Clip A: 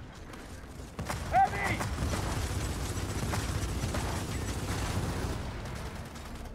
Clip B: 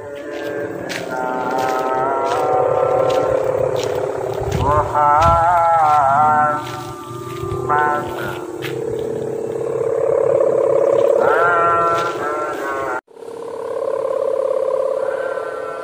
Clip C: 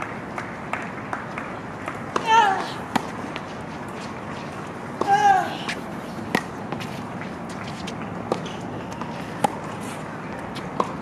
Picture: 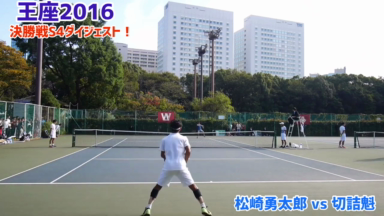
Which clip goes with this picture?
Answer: C